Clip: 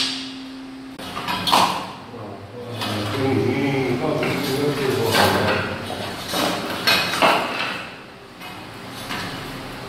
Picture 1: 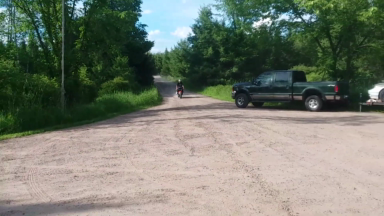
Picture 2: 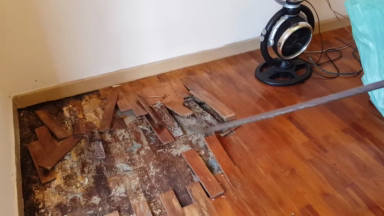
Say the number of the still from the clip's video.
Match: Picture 2